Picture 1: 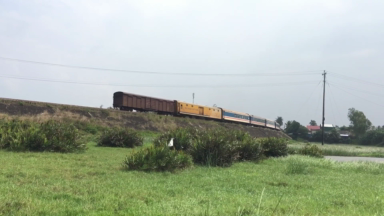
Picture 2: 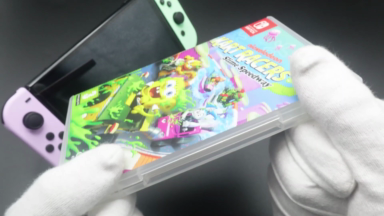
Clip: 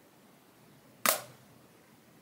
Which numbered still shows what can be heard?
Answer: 2